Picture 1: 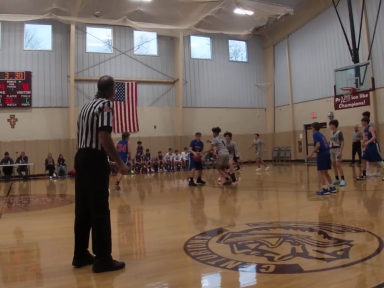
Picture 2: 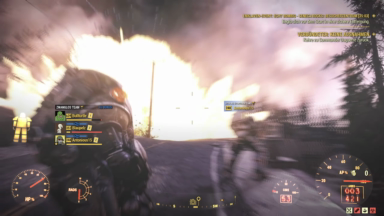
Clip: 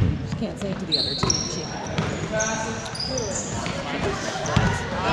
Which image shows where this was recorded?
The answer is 1